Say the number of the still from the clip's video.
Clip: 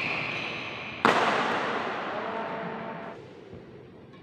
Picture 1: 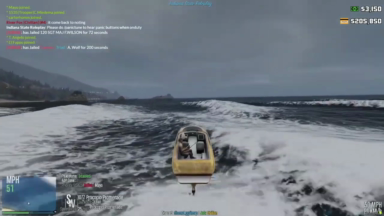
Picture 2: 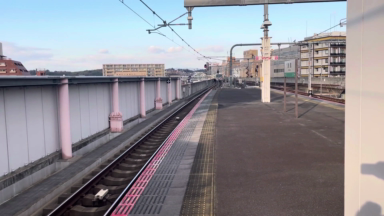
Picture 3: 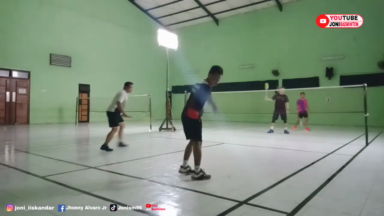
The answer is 3